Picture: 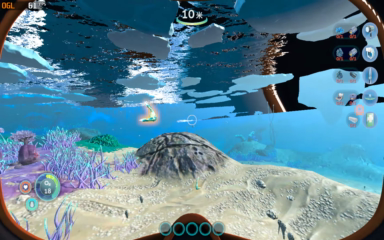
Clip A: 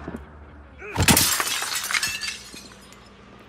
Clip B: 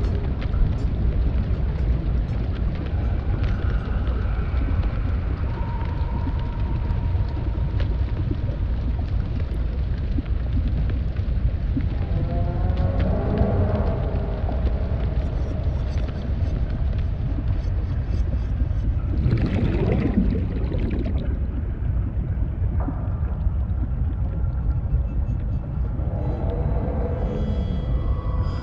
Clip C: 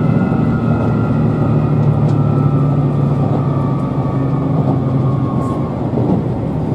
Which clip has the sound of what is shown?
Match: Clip B